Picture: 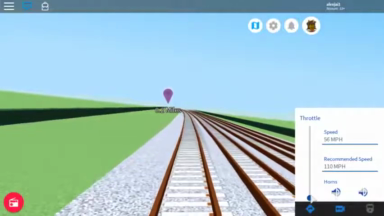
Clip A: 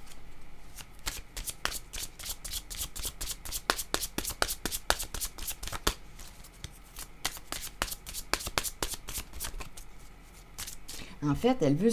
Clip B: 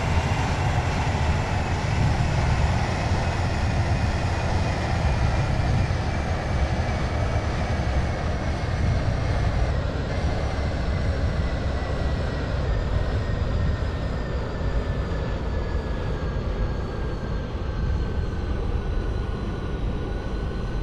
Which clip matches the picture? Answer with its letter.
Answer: B